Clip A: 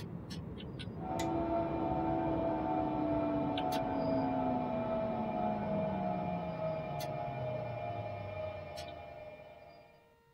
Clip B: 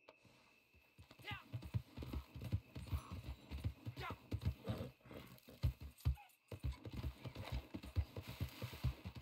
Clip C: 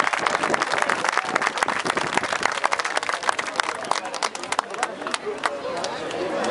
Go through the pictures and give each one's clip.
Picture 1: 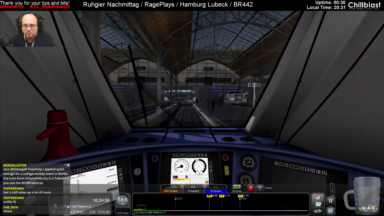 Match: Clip A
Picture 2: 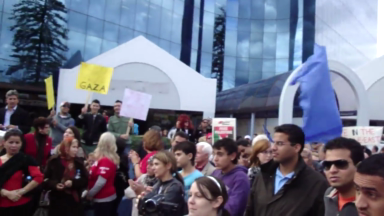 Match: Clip C